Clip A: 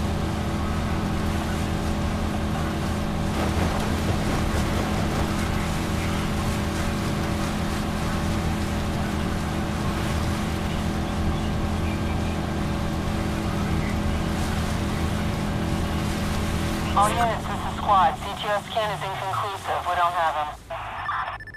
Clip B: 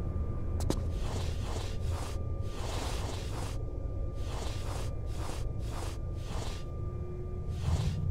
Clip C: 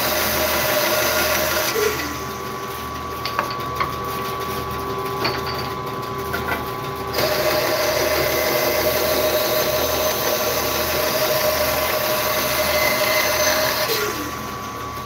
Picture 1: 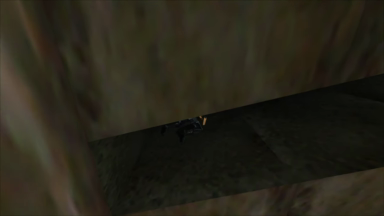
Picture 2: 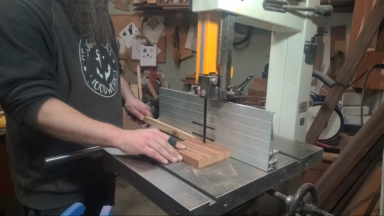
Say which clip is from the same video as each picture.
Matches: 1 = B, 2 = C